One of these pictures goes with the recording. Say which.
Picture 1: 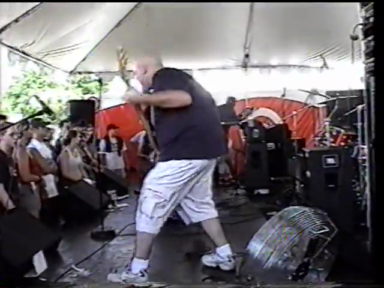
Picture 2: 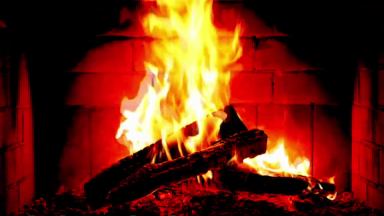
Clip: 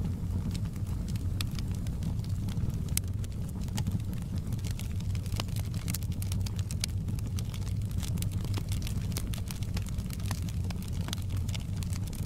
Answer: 2